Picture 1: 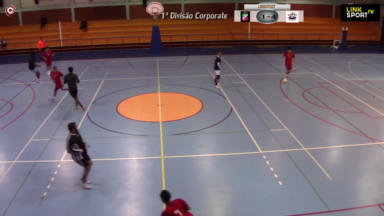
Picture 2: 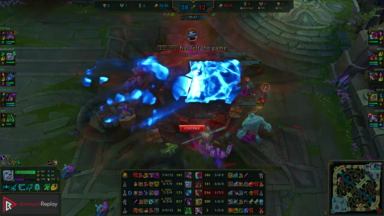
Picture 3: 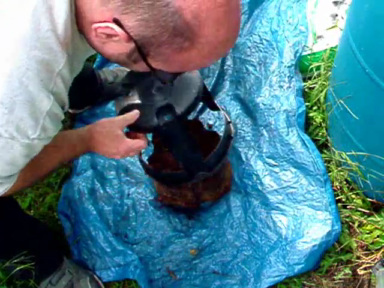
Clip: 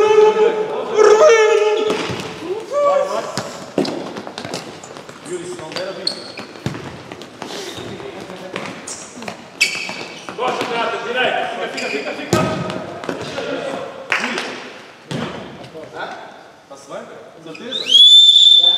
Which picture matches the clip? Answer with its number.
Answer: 1